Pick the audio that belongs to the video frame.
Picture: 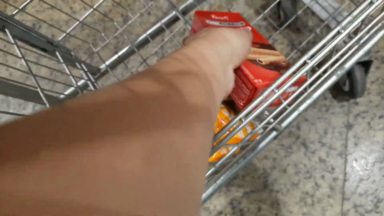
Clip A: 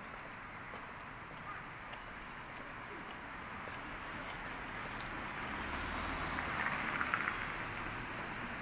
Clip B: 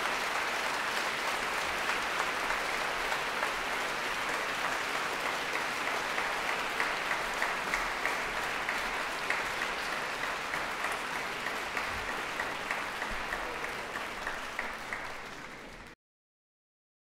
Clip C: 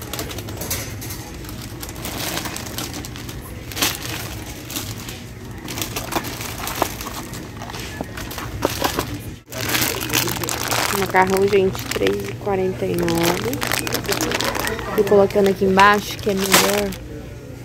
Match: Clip C